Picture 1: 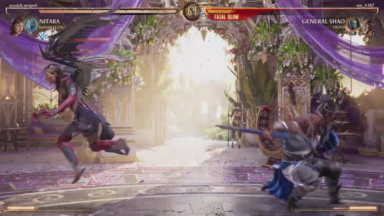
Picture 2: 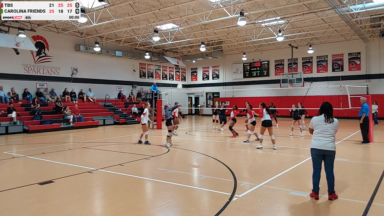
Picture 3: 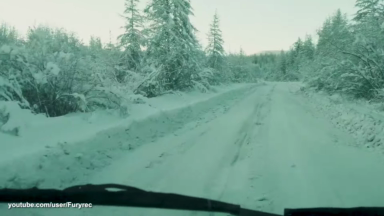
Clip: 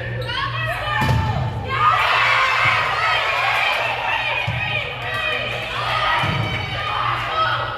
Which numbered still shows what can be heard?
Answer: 2